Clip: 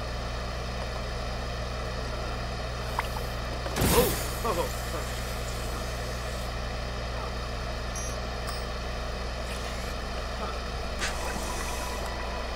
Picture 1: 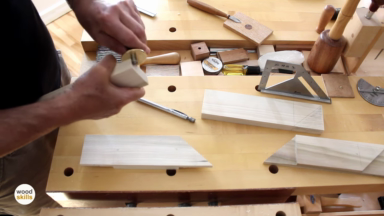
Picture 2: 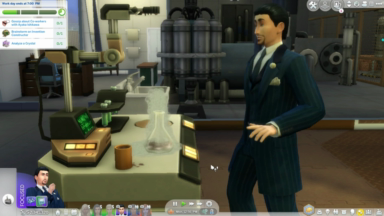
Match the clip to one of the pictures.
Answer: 2